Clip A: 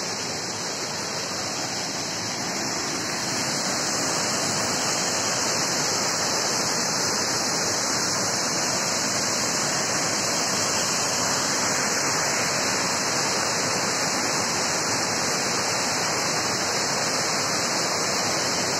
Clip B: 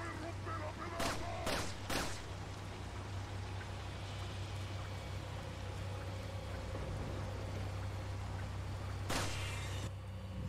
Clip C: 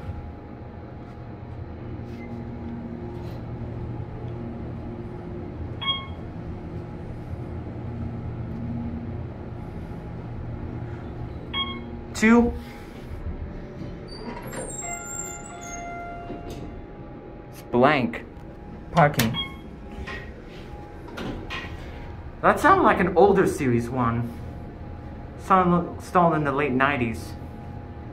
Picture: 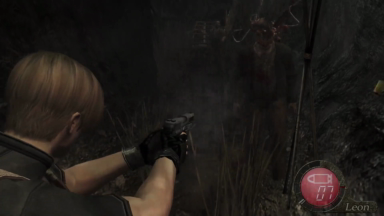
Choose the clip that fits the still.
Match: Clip B